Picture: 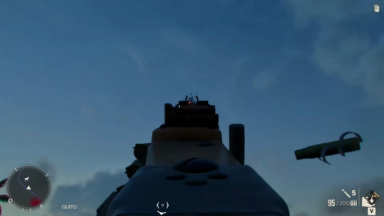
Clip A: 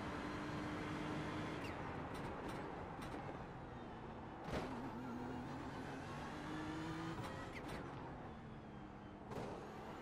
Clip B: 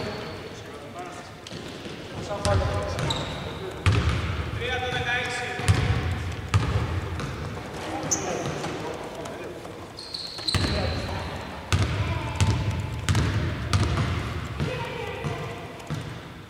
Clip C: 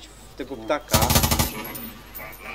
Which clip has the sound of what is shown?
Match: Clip C